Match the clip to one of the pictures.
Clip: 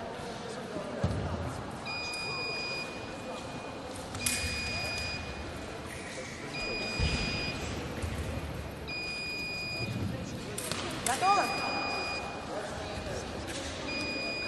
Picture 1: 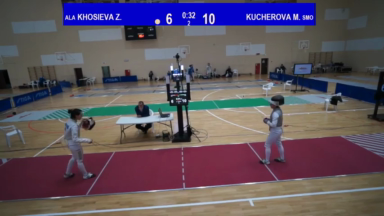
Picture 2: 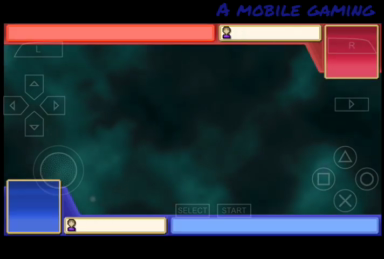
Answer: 1